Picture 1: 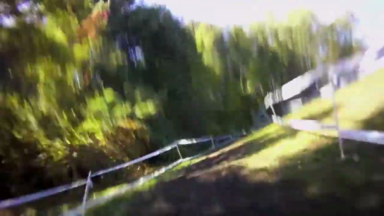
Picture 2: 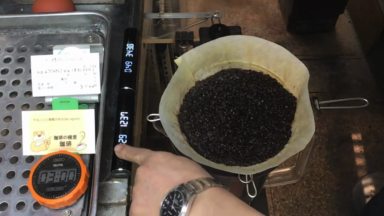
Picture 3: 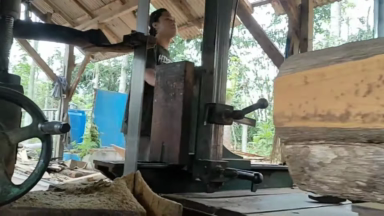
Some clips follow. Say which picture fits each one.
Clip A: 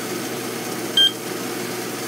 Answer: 2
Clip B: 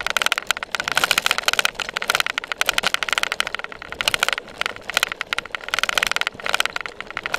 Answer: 1